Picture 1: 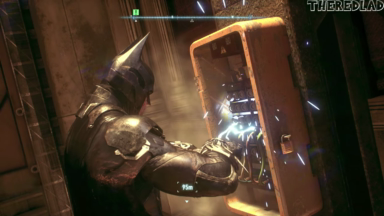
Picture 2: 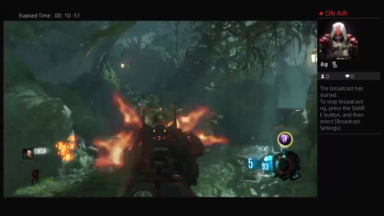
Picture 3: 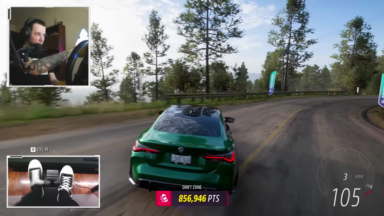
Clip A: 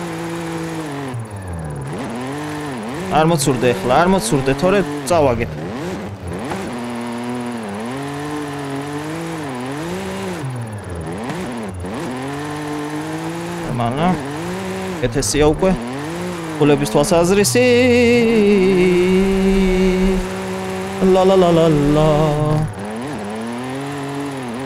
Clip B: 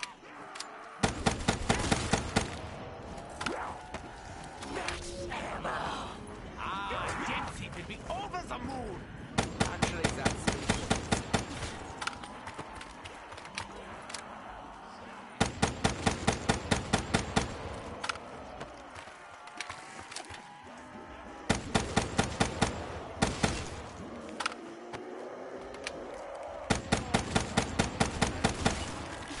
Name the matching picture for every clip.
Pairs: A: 3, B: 2